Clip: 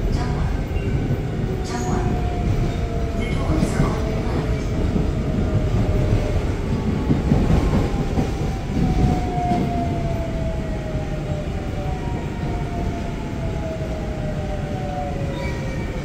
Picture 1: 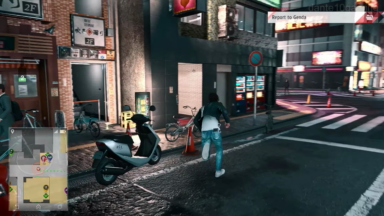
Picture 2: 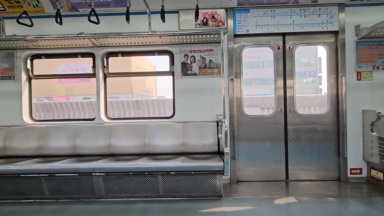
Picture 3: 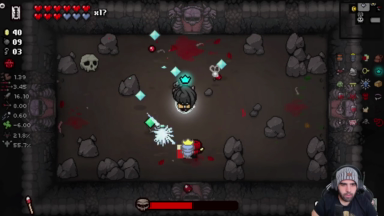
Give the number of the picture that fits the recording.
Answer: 2